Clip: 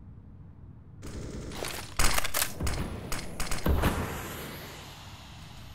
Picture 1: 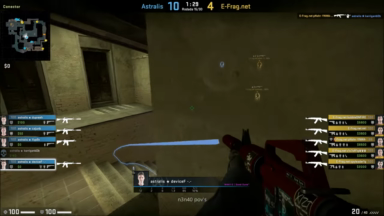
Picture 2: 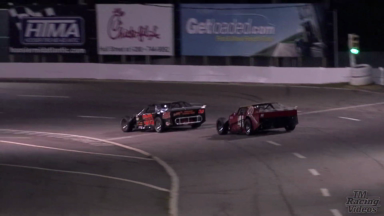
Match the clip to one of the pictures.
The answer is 1